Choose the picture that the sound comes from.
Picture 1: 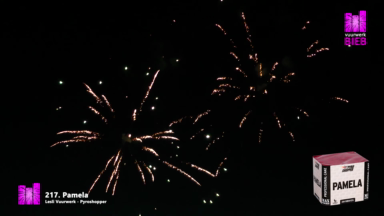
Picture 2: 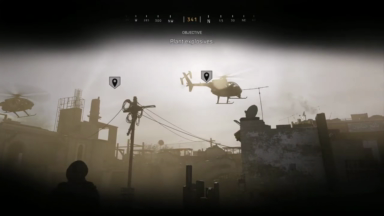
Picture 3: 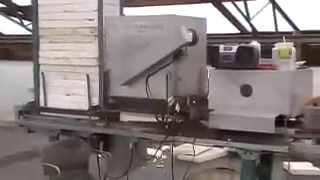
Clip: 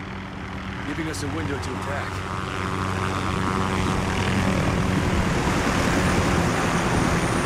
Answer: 2